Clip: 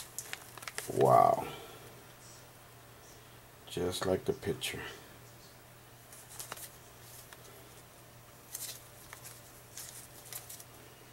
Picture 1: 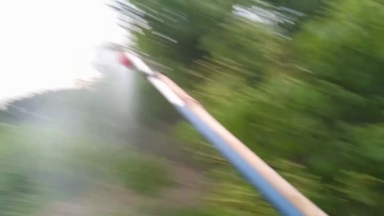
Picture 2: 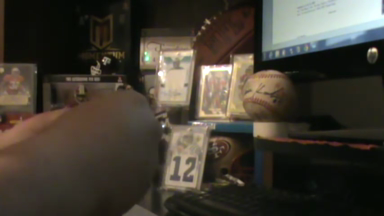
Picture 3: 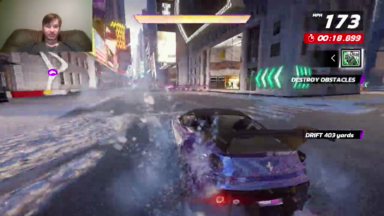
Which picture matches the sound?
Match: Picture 2